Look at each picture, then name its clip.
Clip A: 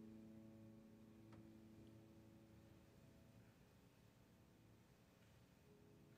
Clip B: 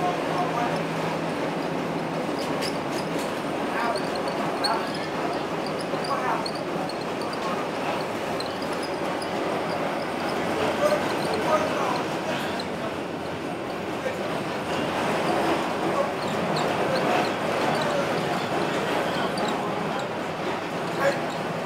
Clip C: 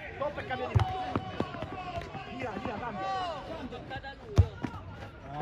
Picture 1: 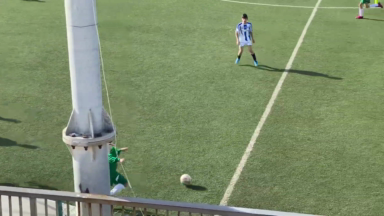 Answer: C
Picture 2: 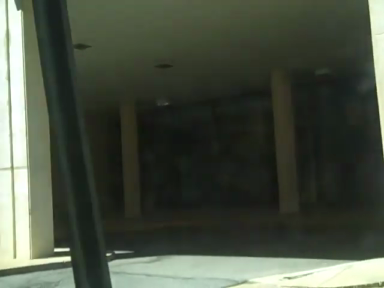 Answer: B